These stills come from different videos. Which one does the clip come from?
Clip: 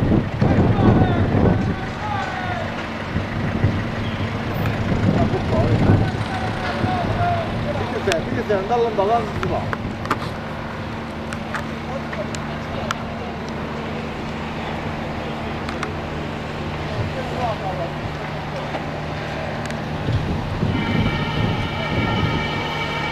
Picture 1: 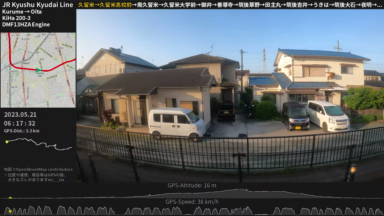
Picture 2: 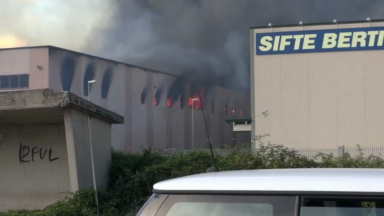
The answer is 2